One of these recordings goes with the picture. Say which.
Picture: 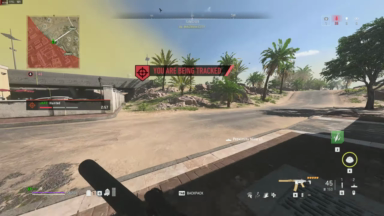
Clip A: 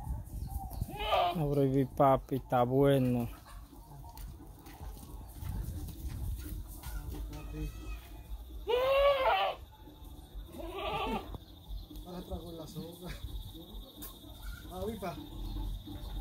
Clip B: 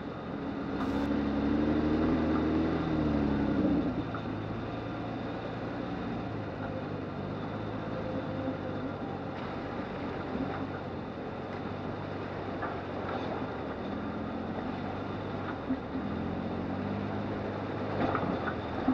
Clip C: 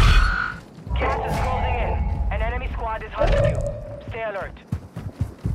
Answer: C